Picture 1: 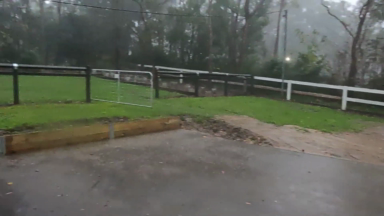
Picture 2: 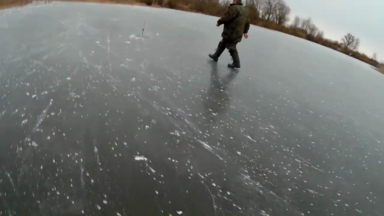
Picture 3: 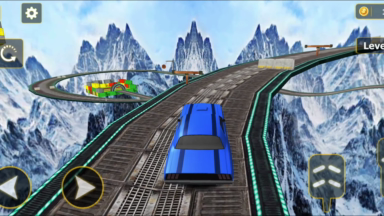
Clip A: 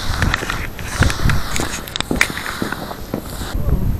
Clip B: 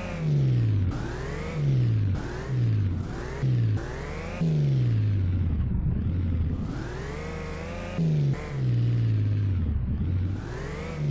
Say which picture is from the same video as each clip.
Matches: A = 2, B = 3